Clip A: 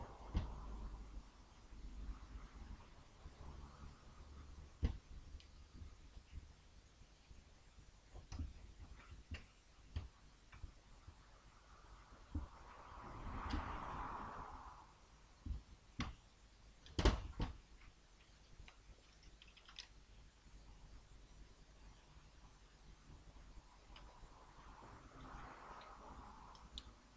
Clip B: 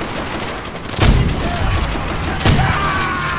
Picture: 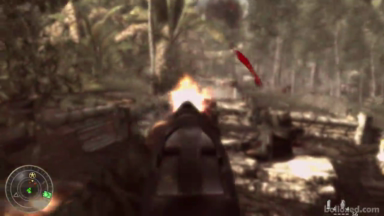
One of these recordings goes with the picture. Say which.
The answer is B